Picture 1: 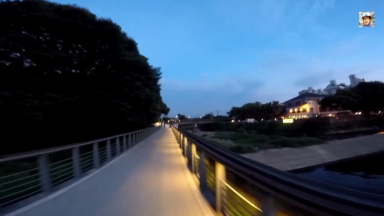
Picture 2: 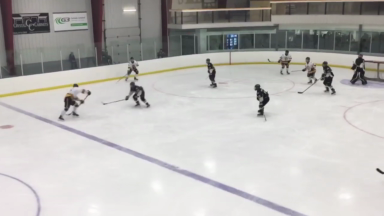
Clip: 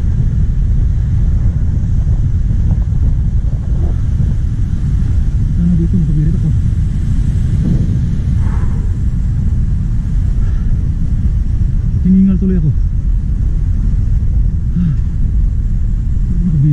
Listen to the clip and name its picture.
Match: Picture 1